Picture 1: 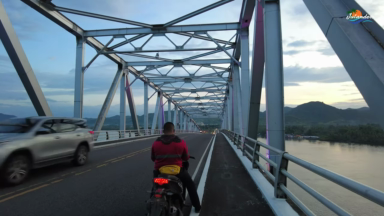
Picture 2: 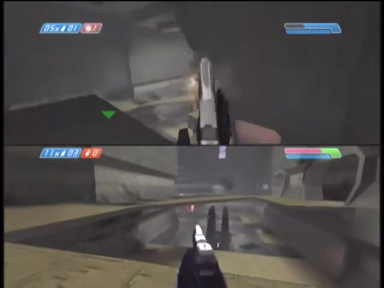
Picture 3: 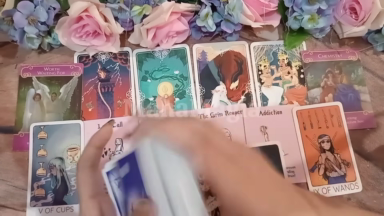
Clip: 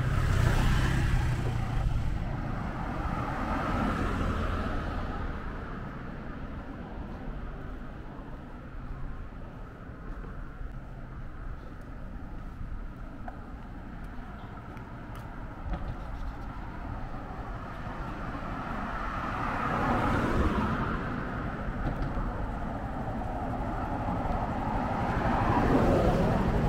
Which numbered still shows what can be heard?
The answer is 1